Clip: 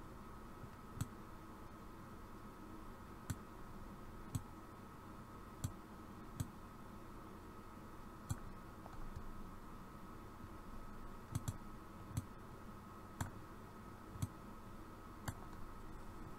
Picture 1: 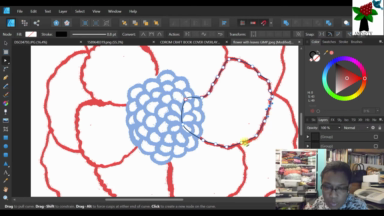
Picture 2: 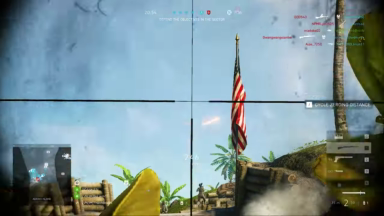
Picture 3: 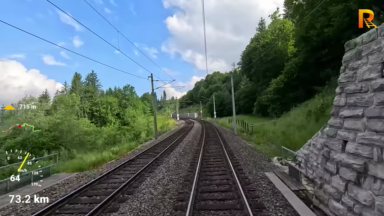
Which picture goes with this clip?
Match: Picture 1